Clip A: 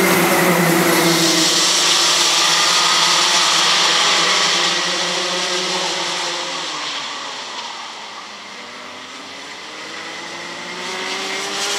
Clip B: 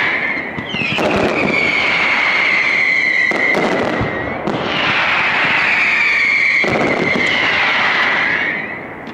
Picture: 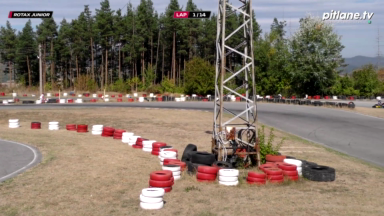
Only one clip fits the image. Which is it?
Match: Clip A